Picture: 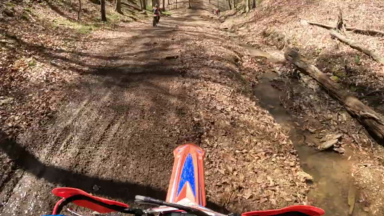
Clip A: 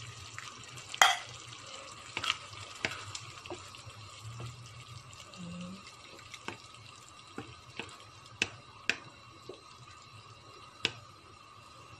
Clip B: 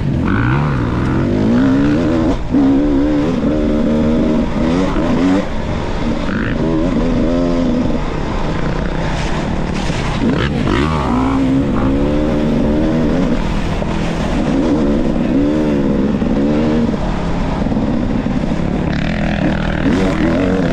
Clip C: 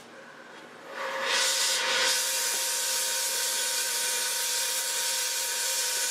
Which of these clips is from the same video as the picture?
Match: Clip B